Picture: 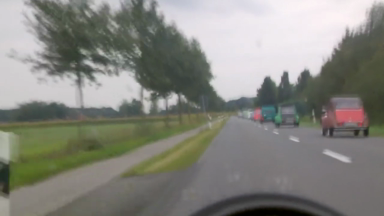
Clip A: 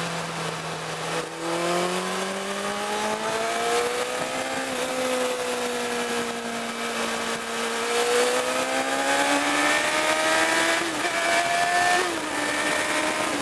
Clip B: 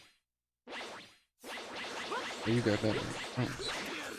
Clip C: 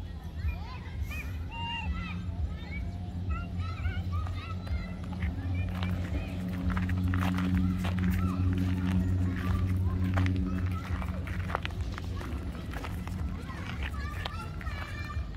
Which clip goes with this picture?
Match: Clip A